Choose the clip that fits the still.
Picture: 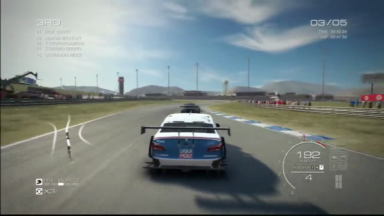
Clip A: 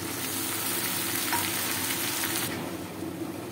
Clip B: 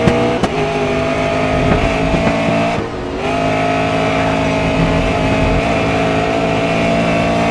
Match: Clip B